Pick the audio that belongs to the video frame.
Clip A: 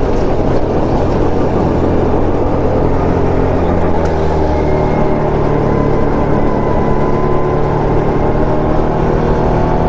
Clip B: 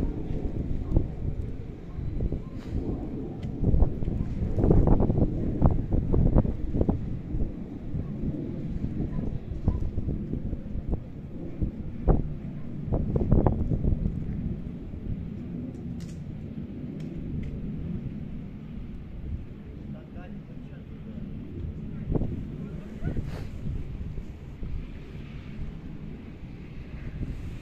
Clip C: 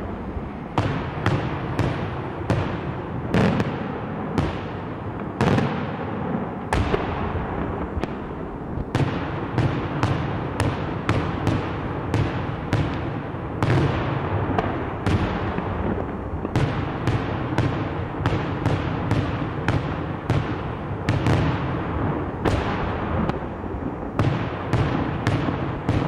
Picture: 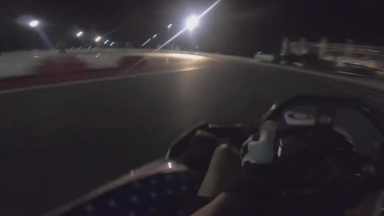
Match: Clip A